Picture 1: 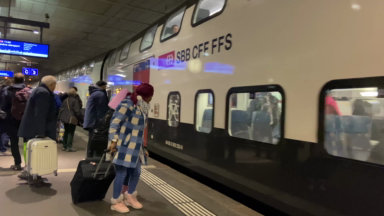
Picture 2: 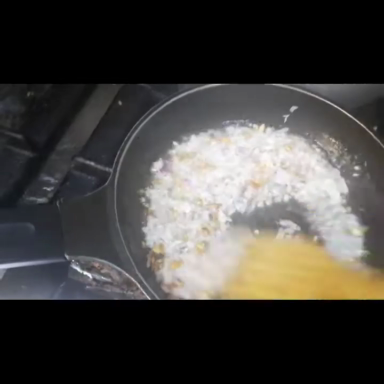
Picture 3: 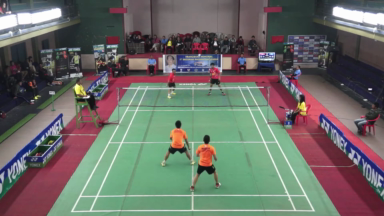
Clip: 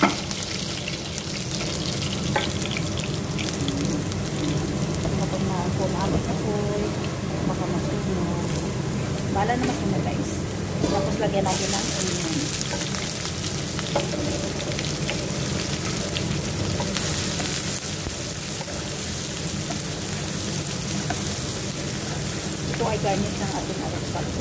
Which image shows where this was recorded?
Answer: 2